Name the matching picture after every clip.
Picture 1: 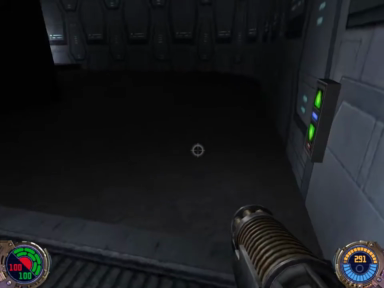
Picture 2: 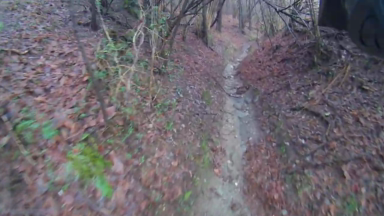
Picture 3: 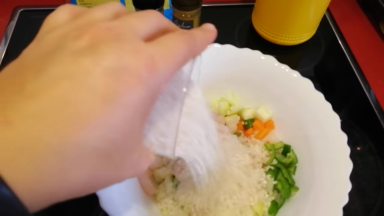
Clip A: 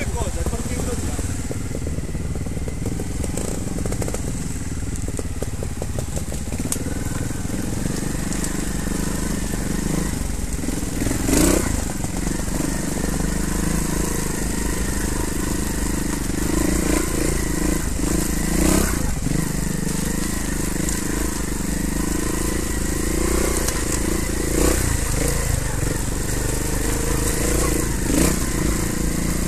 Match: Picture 2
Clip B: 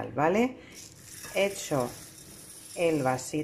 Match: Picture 3